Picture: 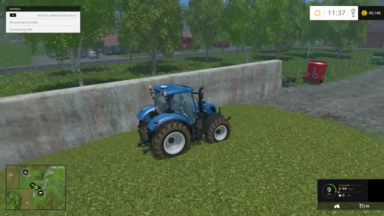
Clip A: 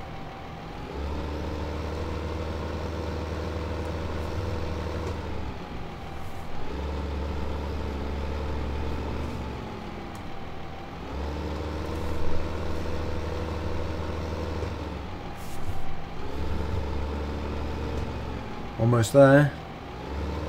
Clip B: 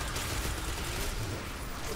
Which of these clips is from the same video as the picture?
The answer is A